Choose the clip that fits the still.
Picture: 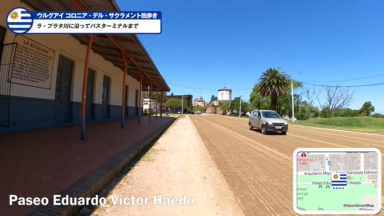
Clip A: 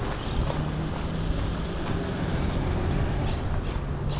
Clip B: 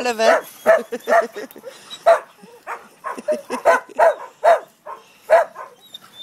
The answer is A